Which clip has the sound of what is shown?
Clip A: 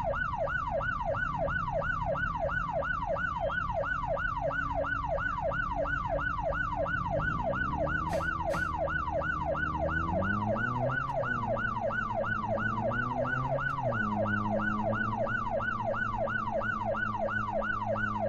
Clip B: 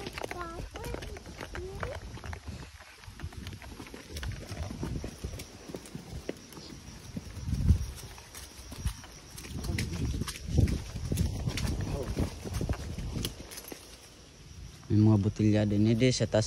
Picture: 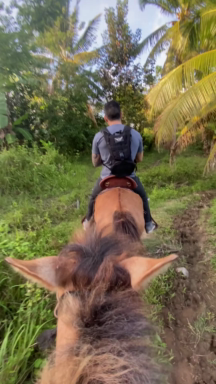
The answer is B